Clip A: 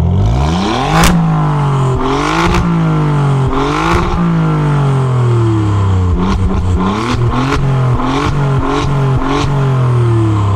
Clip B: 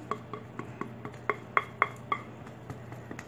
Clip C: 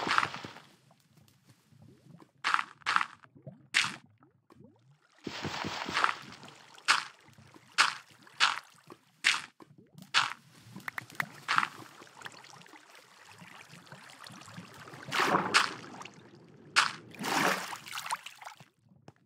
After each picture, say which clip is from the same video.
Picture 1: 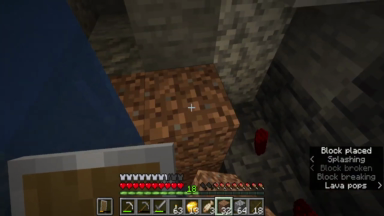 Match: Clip C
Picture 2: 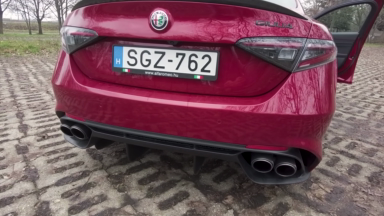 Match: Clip A